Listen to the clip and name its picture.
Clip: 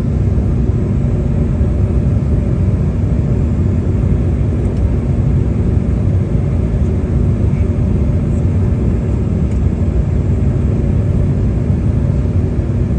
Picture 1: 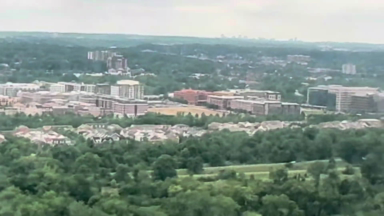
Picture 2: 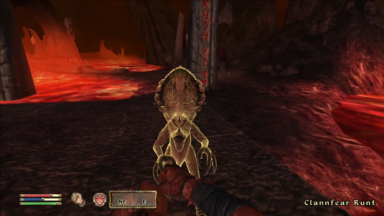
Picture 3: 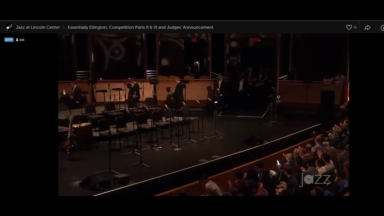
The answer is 1